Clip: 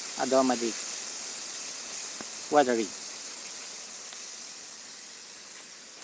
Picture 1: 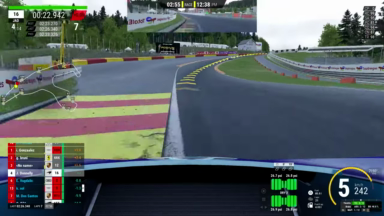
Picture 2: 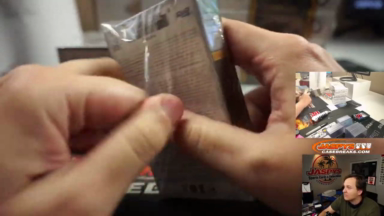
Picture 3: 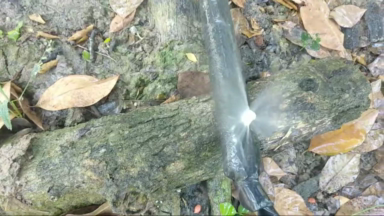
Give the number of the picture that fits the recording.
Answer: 3